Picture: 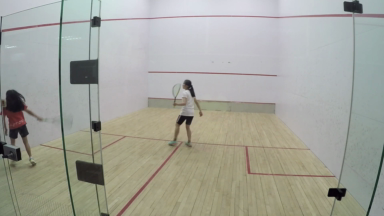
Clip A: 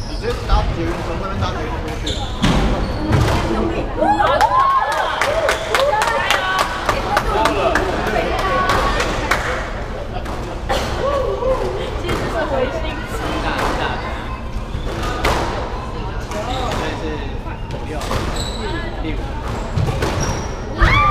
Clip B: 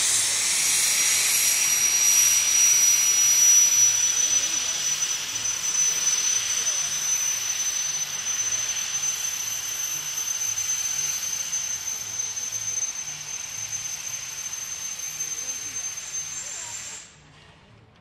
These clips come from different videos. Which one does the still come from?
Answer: A